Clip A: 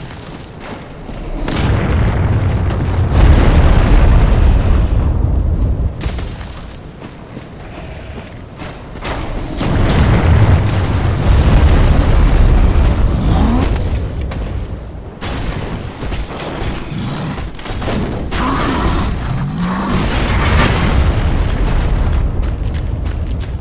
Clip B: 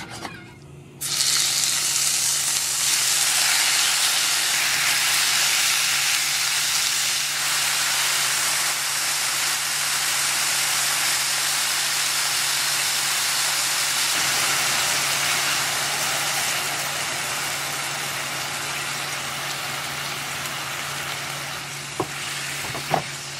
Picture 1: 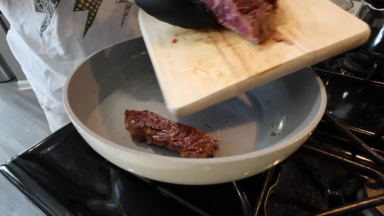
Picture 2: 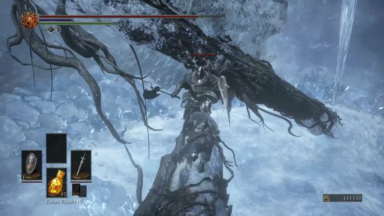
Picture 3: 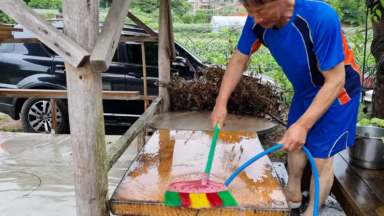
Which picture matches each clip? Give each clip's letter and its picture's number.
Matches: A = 2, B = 1